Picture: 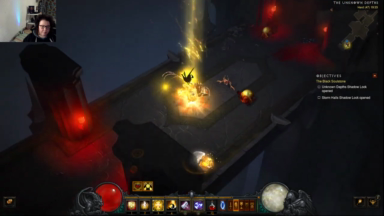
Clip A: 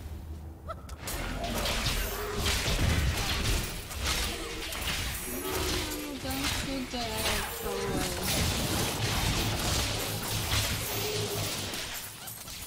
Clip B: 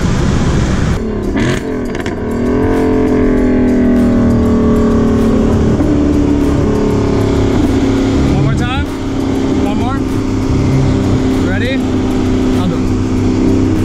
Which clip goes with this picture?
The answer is A